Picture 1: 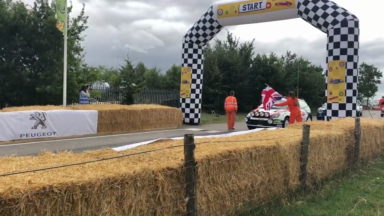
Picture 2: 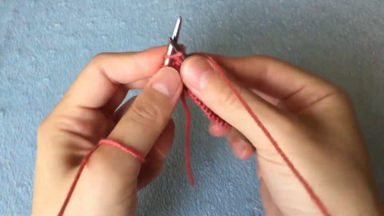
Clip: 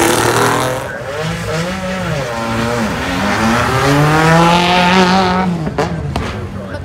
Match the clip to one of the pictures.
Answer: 1